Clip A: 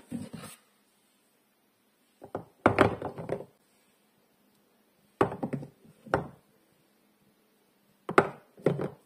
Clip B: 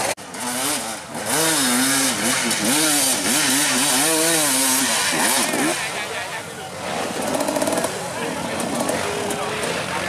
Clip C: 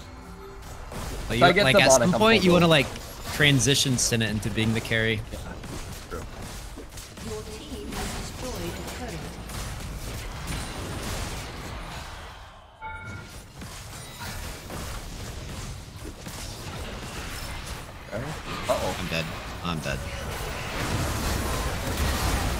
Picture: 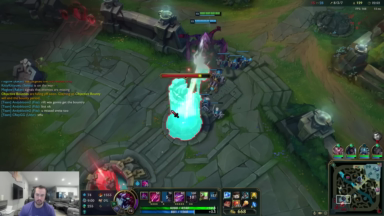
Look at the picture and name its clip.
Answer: C